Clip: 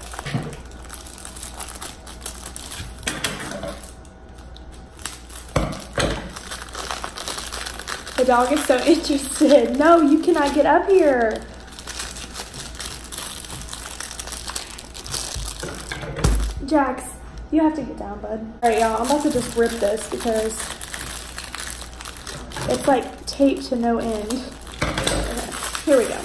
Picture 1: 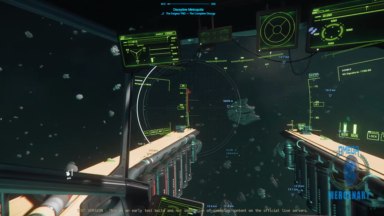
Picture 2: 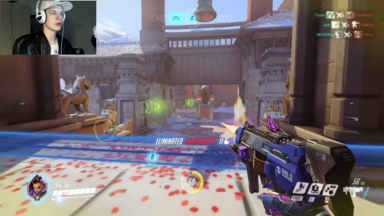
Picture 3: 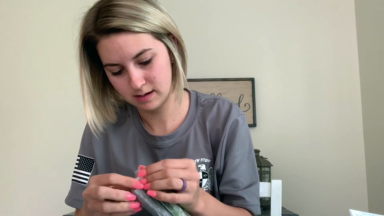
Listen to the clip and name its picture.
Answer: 3